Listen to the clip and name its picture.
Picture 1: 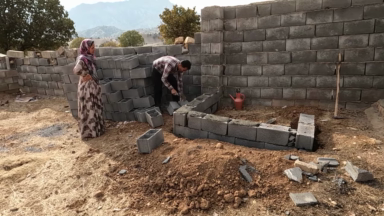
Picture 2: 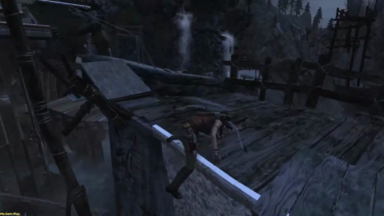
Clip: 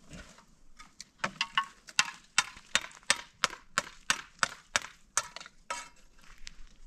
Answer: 1